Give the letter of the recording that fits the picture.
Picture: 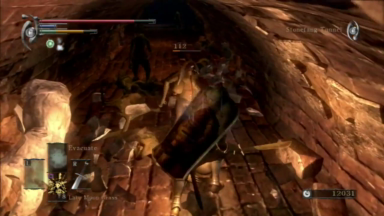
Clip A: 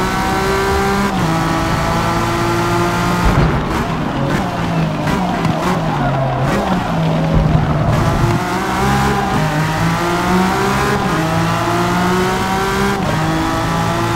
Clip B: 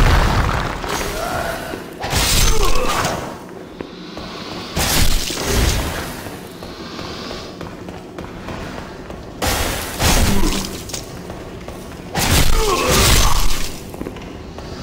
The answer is B